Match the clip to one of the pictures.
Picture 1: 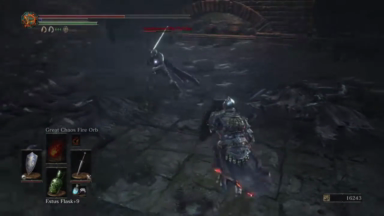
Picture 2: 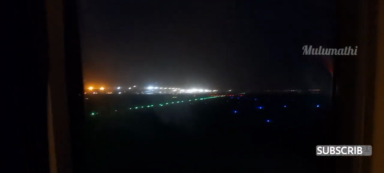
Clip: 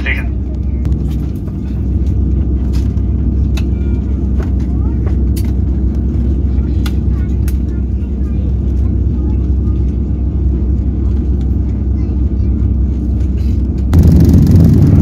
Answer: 2